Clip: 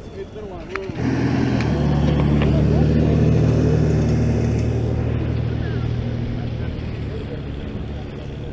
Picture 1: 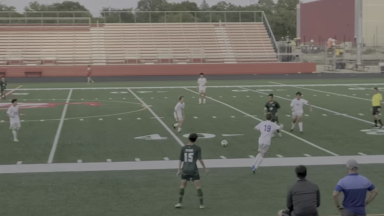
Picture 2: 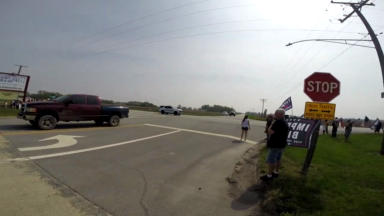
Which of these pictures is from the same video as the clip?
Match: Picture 2